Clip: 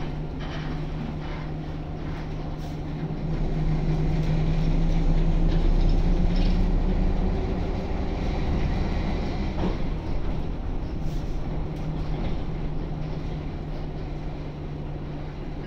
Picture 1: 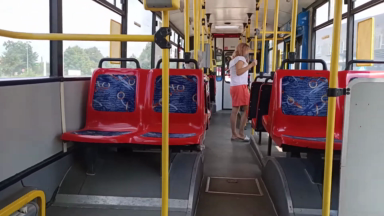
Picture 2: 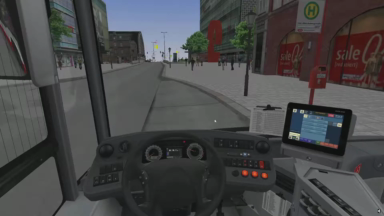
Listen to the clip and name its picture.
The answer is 1